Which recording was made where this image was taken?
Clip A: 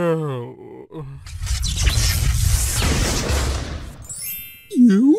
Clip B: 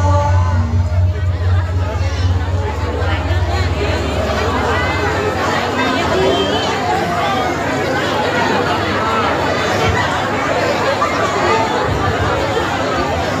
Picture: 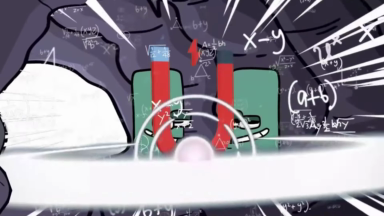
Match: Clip A